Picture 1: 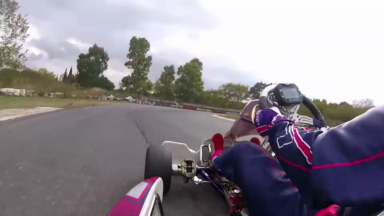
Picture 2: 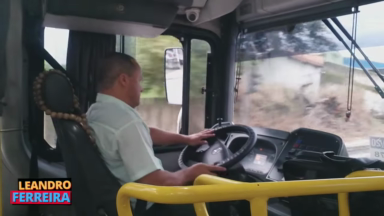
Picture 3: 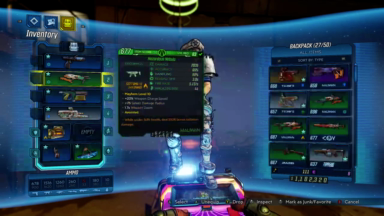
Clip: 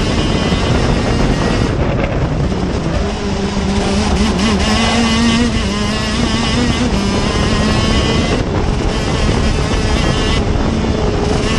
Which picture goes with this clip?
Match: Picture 1